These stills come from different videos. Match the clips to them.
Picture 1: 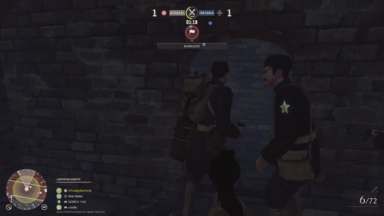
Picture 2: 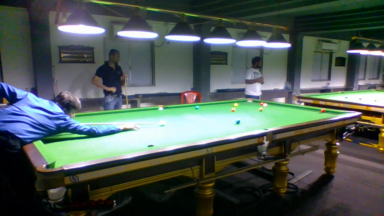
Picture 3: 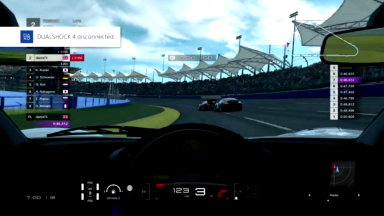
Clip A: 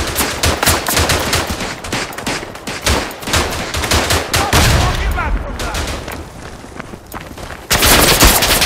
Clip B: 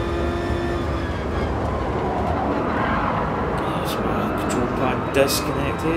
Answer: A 1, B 3